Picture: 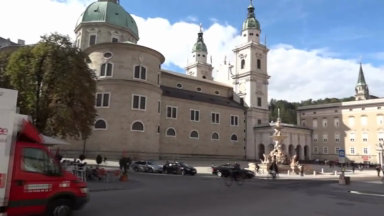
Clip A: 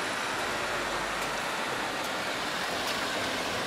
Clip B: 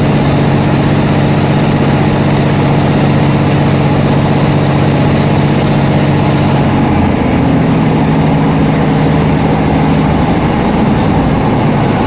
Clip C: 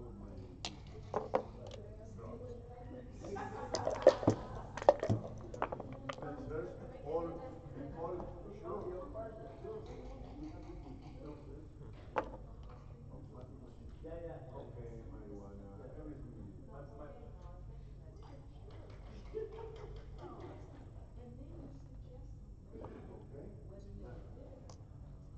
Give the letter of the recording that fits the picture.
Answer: A